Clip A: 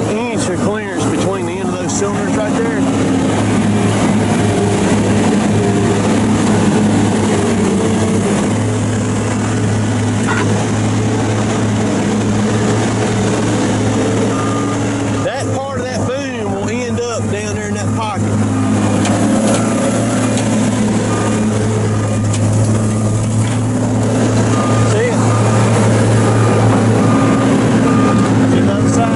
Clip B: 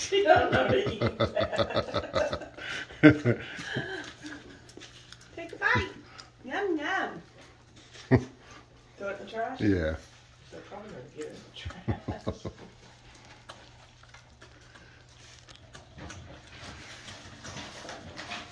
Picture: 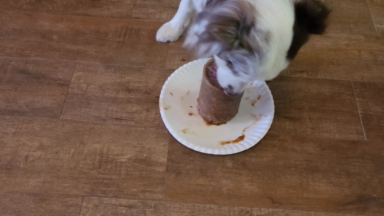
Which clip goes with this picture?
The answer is B